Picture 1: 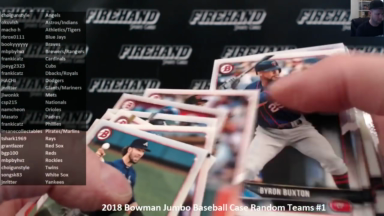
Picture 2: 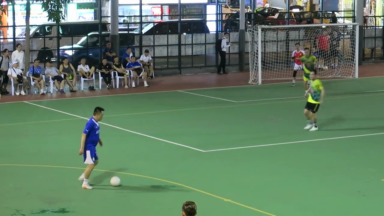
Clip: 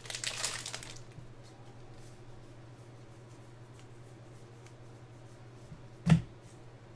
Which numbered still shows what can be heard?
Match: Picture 1